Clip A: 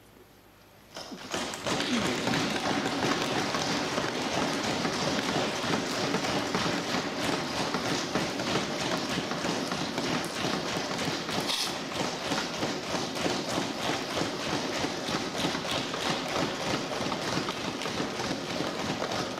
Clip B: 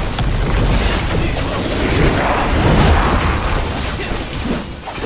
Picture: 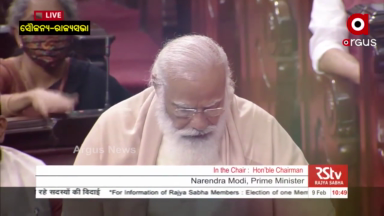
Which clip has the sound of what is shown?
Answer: A